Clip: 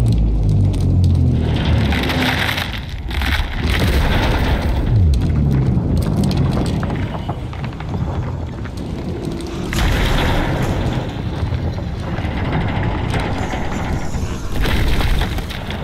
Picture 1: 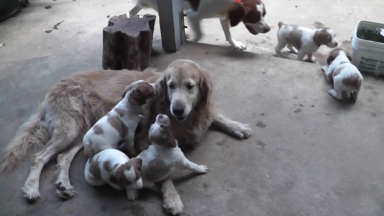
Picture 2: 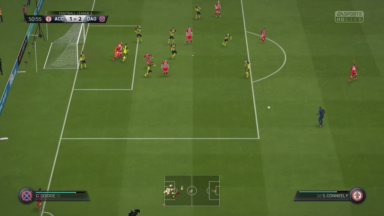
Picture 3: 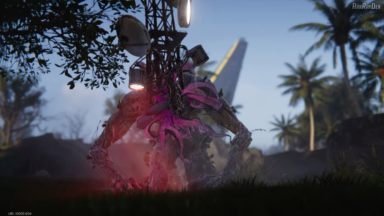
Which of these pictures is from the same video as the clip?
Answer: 3